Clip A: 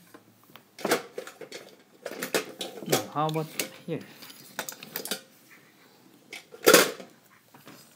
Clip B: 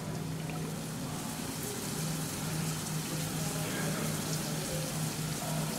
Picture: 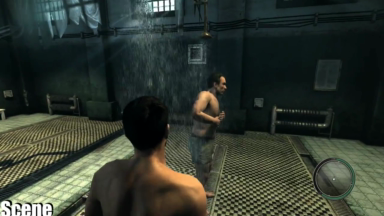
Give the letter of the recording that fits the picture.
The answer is B